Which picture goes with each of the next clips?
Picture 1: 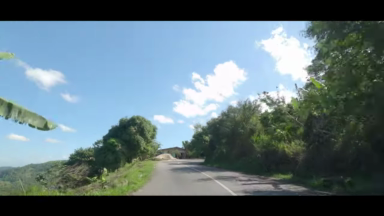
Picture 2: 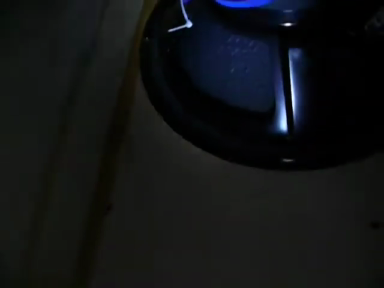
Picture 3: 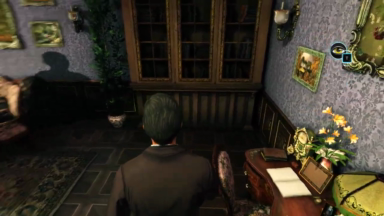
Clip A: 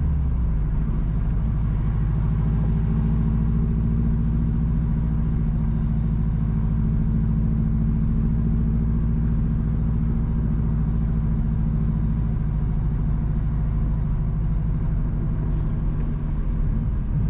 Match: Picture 1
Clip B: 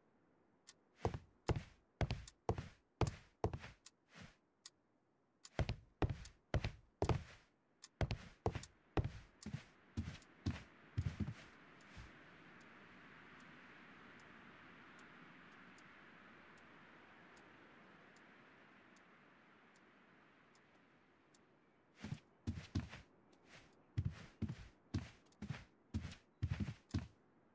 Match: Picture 3